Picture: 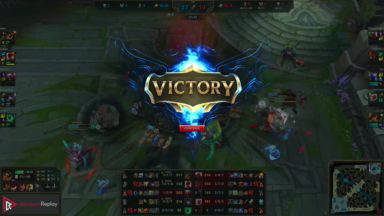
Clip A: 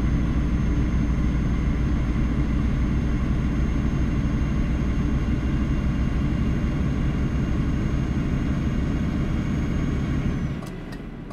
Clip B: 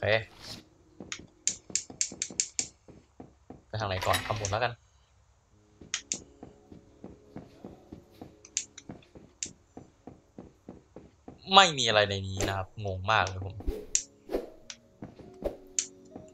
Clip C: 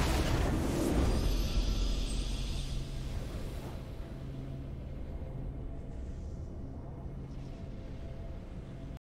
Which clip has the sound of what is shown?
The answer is C